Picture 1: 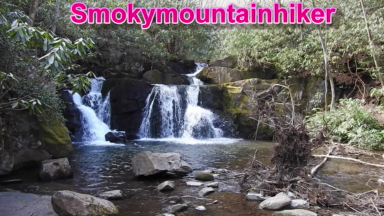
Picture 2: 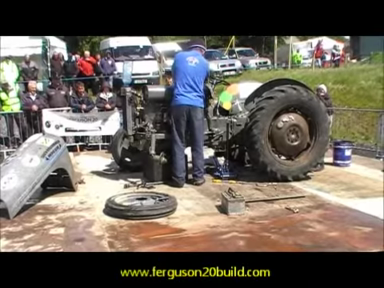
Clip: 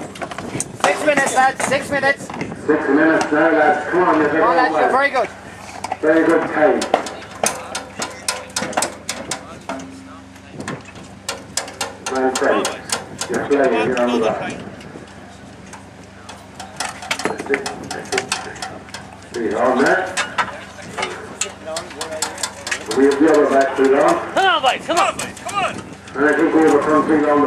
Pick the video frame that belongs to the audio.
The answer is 2